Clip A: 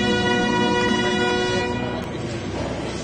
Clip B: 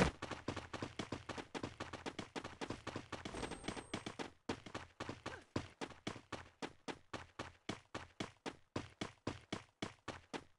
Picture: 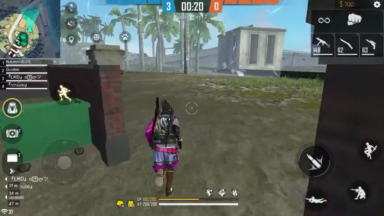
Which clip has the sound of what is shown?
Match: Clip B